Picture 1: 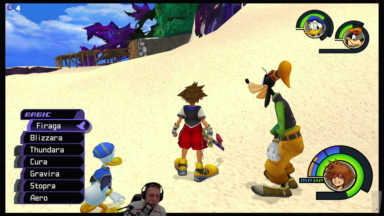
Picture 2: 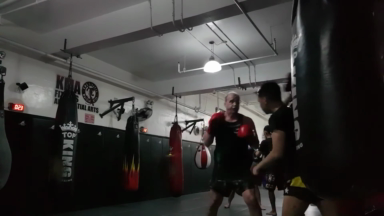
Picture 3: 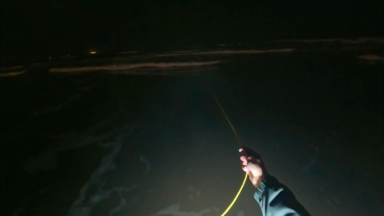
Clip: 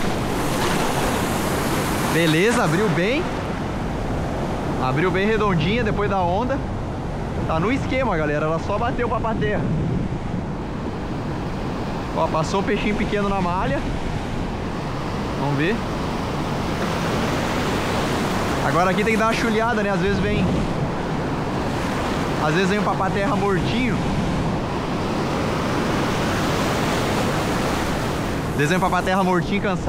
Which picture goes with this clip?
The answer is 3